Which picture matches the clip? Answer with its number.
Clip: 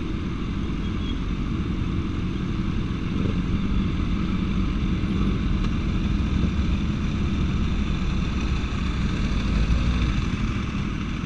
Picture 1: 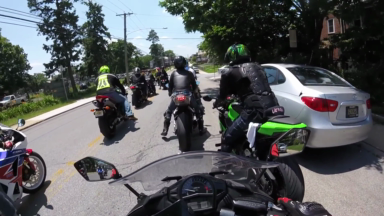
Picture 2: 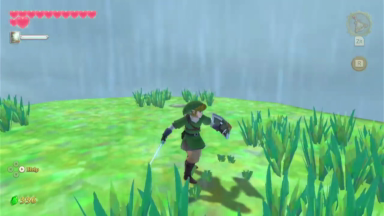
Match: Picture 1